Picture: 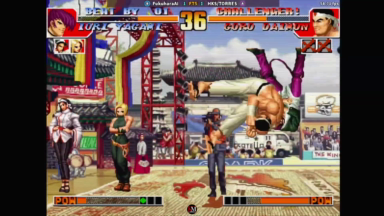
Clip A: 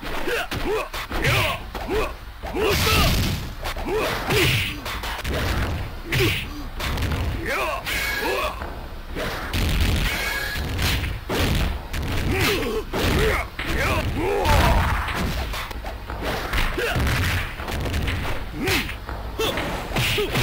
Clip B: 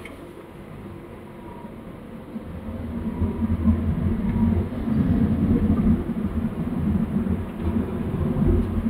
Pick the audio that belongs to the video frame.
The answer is A